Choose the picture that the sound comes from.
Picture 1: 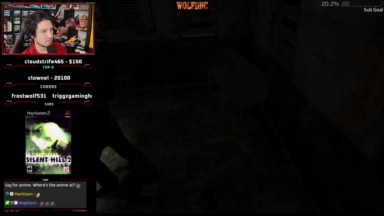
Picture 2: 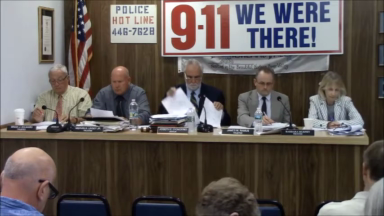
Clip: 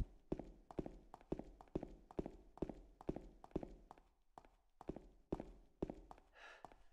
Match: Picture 1